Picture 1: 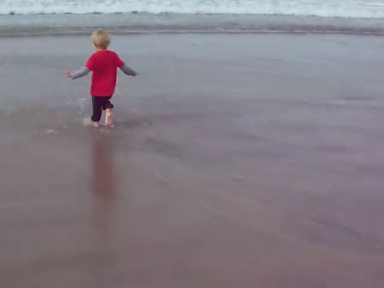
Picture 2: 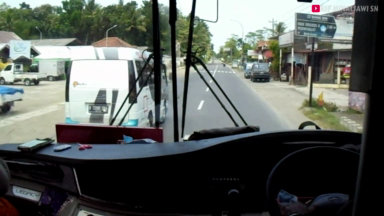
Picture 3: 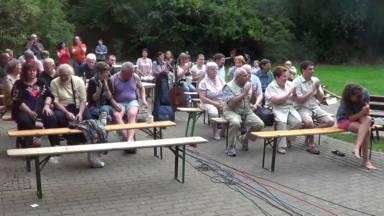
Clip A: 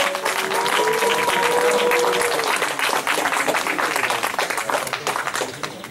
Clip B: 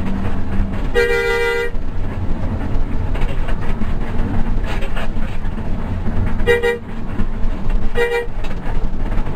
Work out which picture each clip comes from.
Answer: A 3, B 2